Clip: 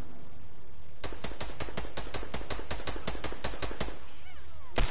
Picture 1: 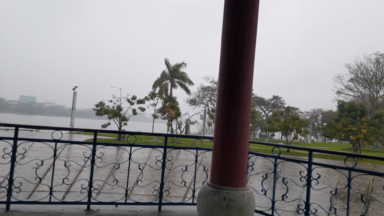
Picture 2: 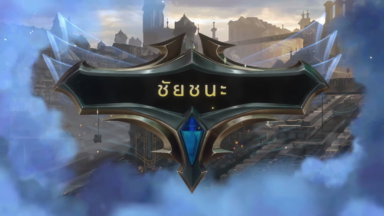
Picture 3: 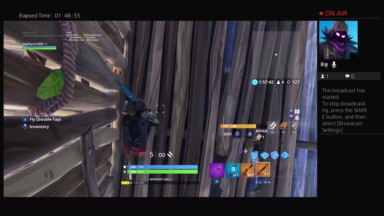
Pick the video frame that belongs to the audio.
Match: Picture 3